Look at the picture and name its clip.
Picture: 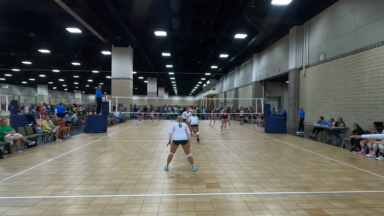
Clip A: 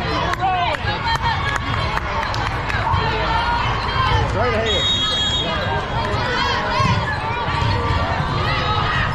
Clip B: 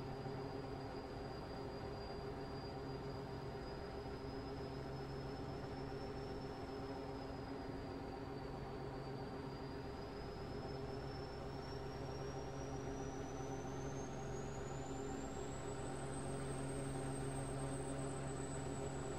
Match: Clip A